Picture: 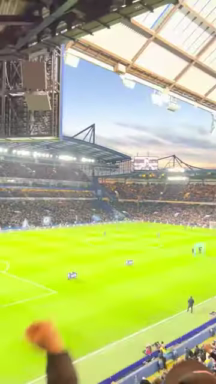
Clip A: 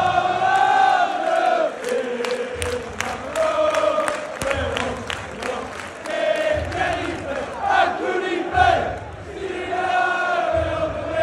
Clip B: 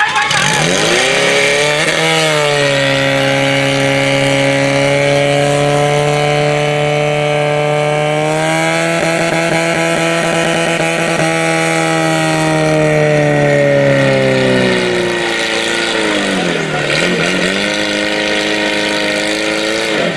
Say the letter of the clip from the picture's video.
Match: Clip A